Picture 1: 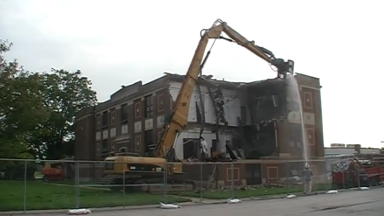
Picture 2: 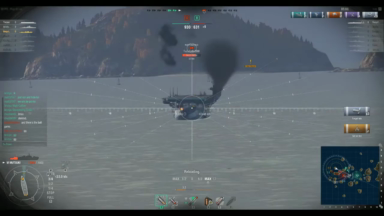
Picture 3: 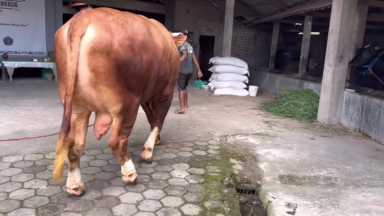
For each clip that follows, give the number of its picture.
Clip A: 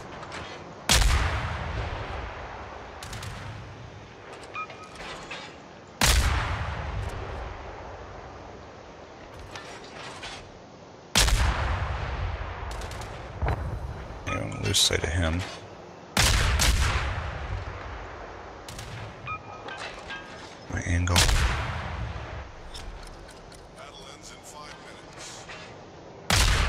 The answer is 2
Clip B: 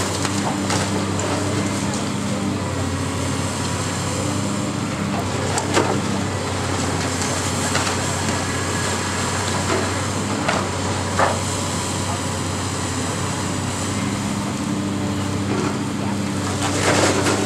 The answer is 1